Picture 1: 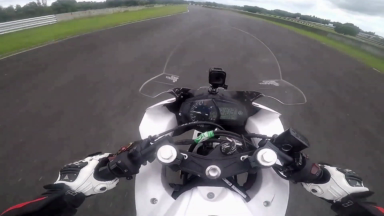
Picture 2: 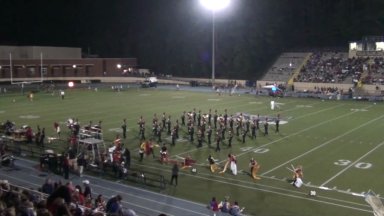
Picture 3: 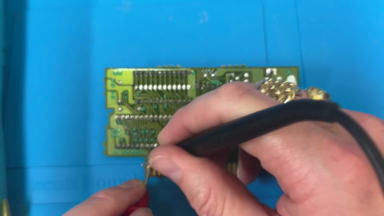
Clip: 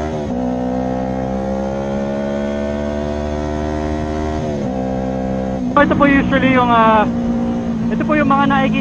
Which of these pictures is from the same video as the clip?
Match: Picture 1